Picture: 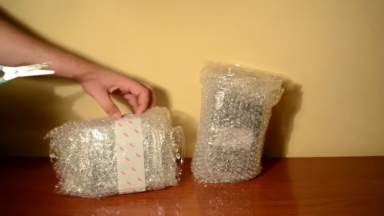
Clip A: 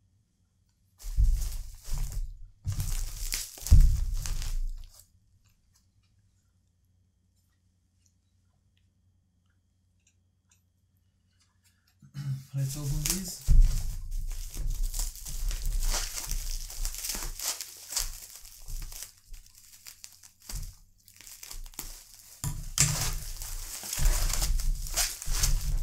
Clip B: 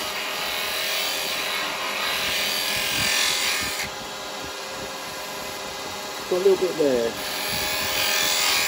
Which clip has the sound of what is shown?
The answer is A